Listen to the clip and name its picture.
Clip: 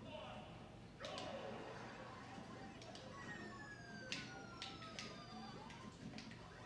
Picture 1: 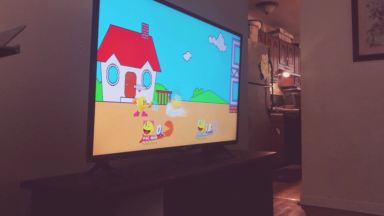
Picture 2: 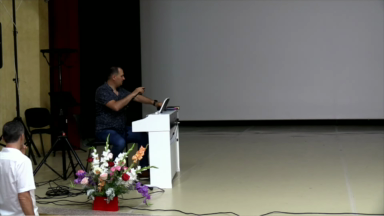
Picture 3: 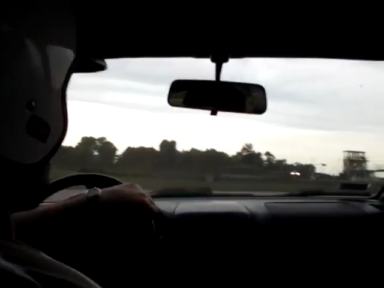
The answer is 1